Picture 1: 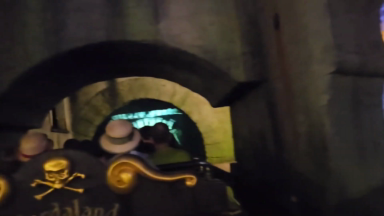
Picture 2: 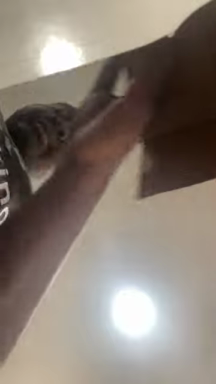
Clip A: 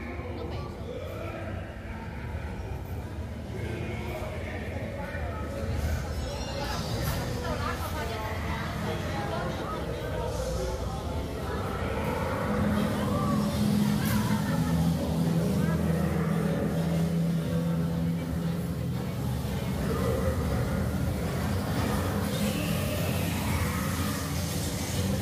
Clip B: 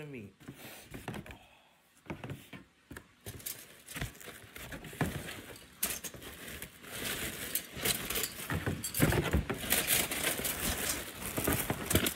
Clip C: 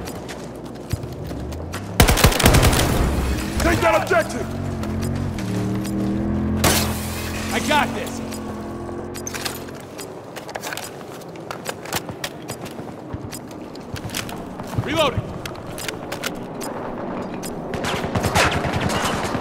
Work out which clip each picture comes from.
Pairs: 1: A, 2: B